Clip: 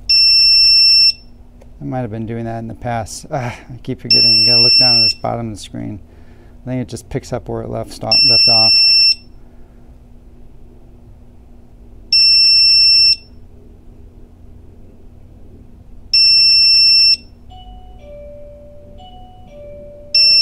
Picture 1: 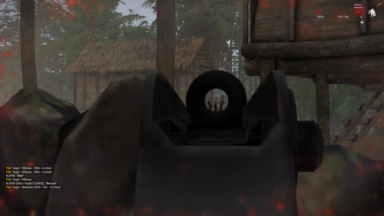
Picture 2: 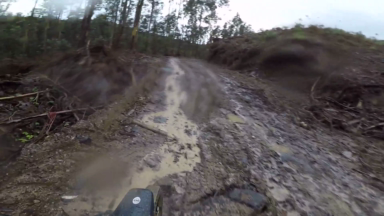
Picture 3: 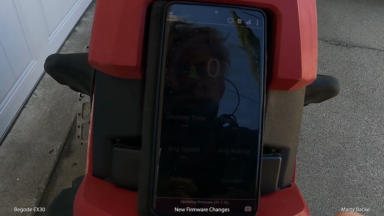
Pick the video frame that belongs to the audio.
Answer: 3